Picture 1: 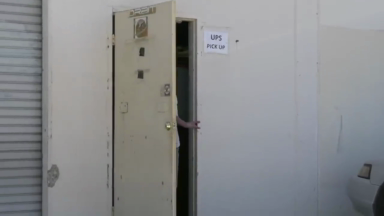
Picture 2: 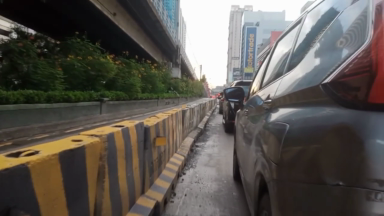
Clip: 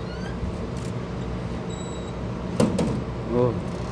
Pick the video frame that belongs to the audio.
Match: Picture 1